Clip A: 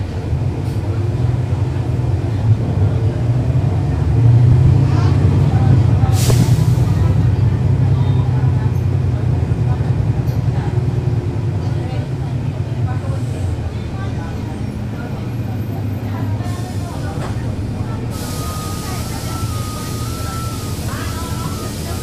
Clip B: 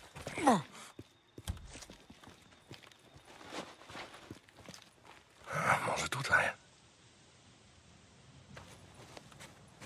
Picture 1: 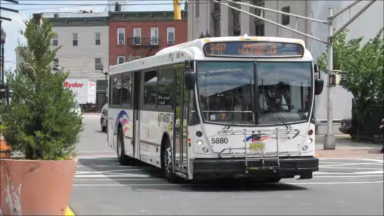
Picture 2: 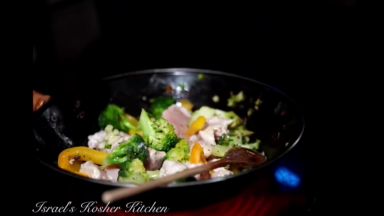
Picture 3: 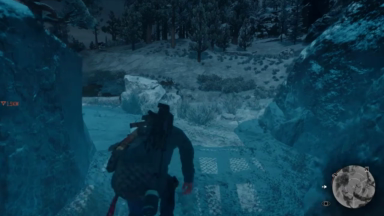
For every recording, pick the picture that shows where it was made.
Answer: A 1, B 3